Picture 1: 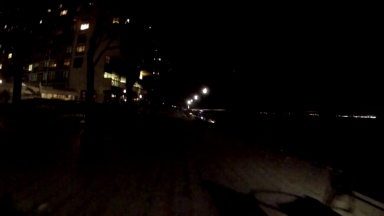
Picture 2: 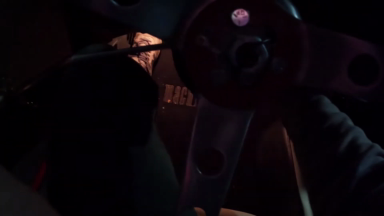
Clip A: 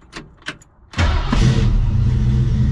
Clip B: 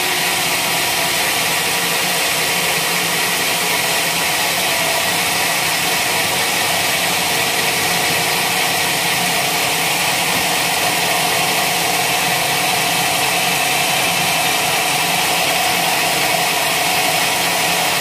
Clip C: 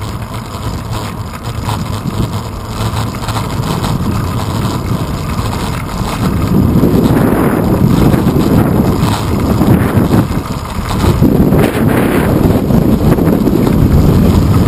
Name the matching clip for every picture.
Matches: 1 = C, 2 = A